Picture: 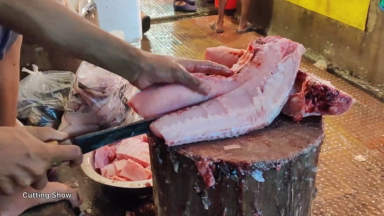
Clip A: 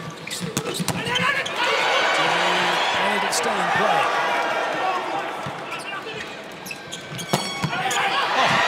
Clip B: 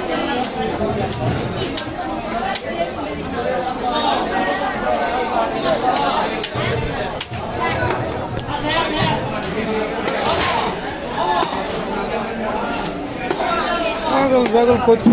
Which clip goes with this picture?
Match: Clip B